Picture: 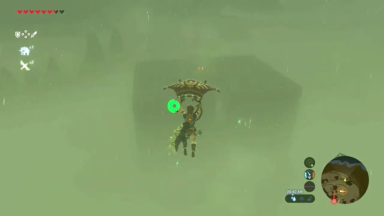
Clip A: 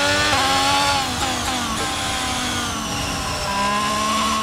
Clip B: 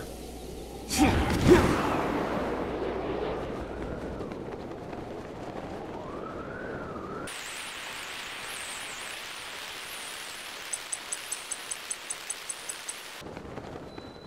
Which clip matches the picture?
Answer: B